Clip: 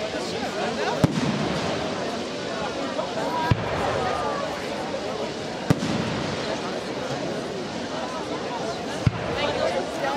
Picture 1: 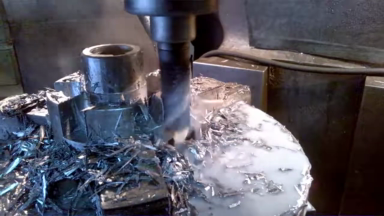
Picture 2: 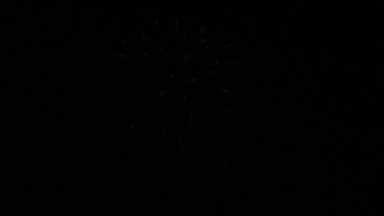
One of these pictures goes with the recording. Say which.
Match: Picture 2